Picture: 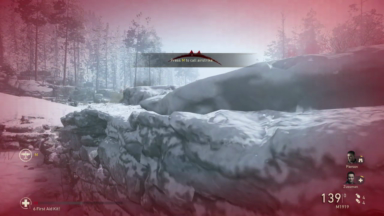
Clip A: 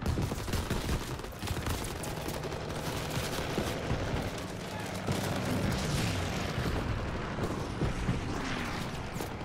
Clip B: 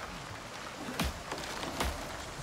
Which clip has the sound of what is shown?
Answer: A